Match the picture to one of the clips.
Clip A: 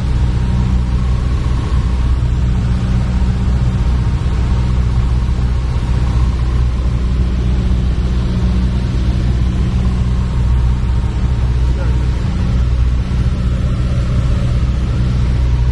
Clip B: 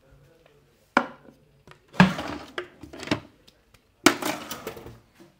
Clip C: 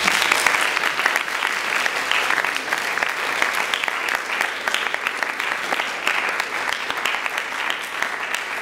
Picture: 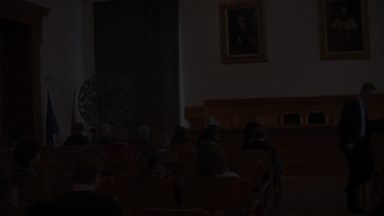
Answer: C